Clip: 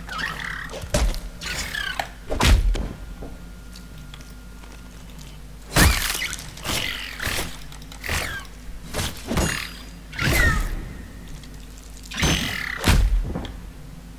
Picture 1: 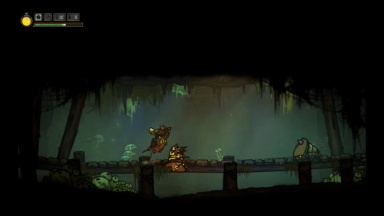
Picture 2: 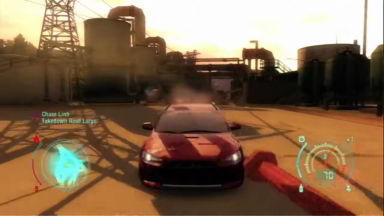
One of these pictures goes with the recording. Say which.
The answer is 1